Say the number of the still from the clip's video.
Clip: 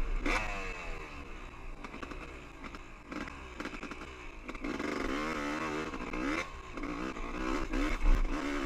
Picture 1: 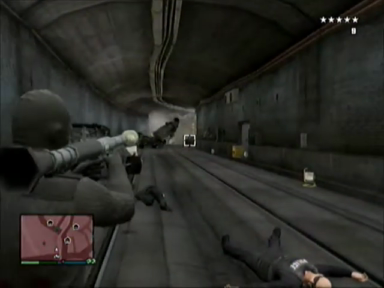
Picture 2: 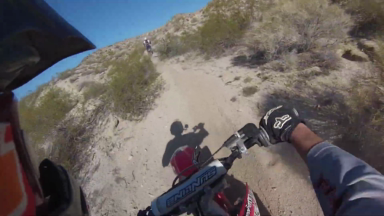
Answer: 2